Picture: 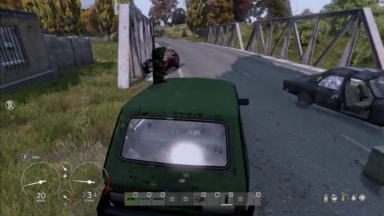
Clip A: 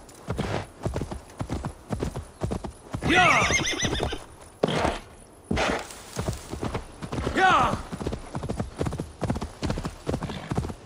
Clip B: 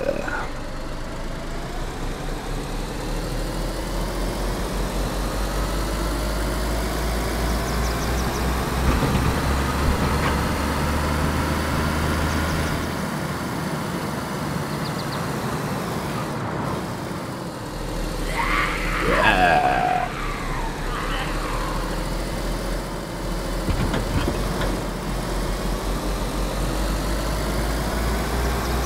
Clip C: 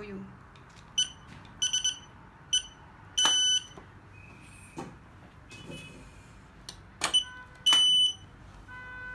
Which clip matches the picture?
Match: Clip B